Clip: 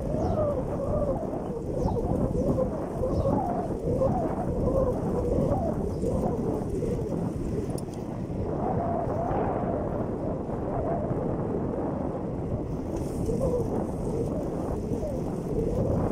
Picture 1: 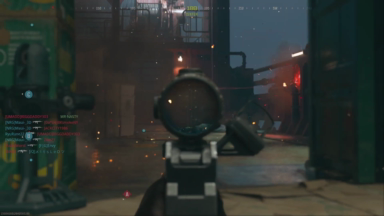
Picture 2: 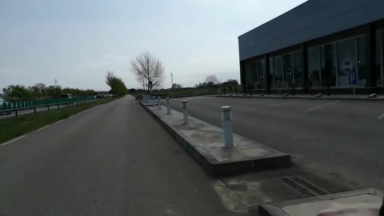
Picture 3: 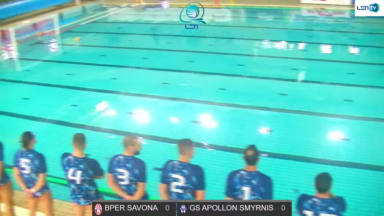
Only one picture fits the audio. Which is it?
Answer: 2